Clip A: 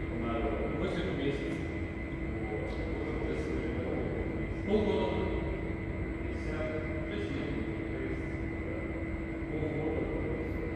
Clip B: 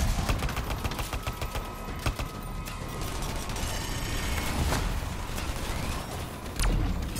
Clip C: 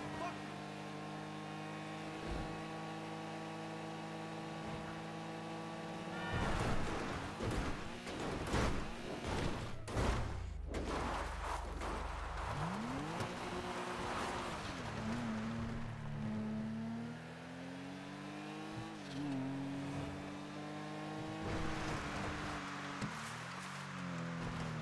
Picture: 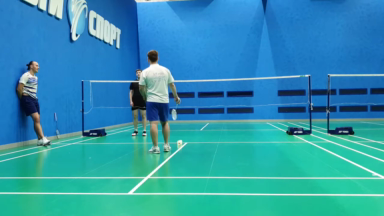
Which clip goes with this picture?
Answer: A